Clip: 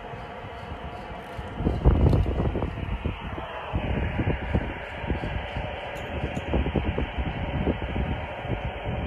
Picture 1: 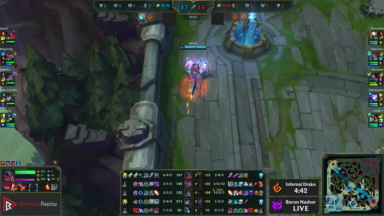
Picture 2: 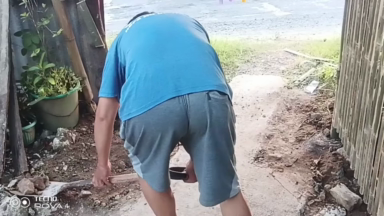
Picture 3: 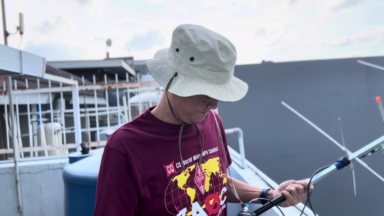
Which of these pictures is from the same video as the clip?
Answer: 3